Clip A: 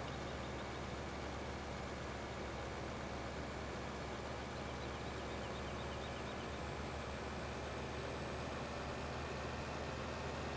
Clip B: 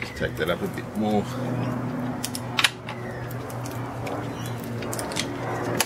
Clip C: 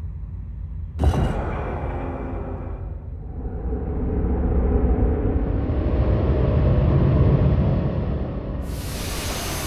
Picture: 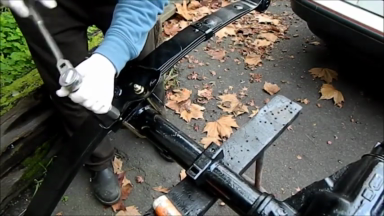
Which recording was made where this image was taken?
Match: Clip B